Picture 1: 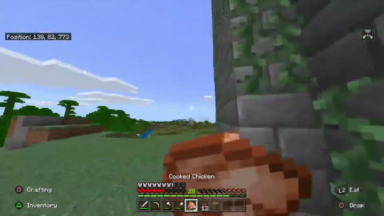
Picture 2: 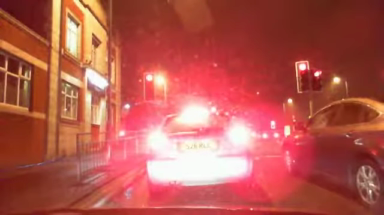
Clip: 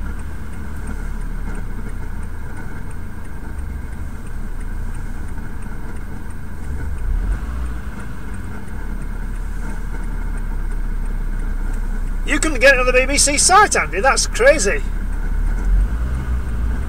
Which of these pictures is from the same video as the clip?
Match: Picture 2